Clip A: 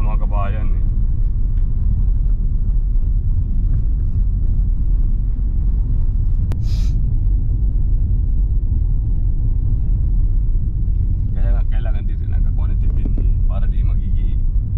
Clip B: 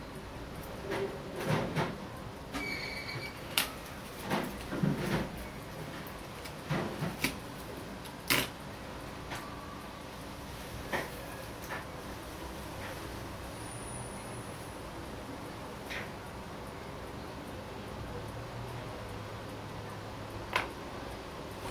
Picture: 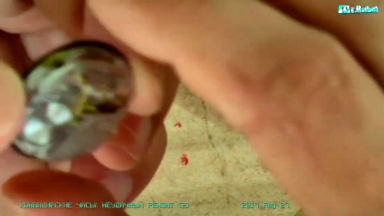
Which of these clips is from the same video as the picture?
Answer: B